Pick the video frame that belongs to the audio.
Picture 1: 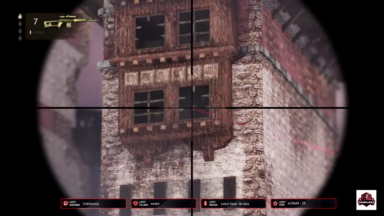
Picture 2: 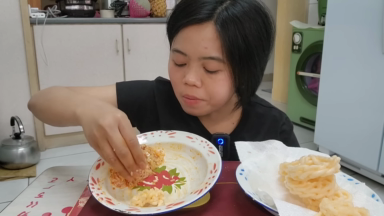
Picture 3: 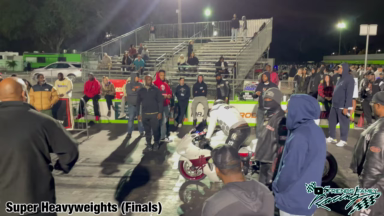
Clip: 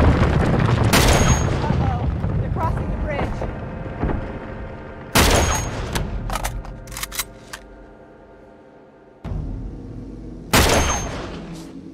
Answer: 1